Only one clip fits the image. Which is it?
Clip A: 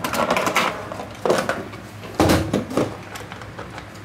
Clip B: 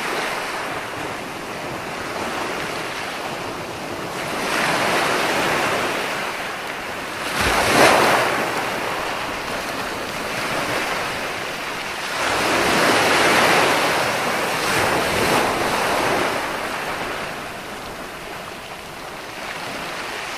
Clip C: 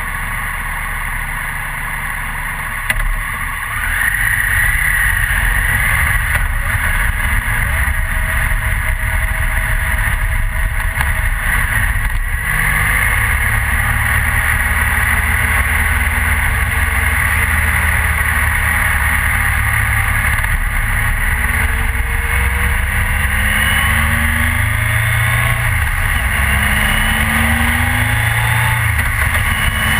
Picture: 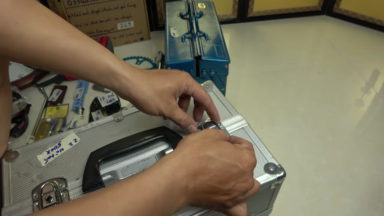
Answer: A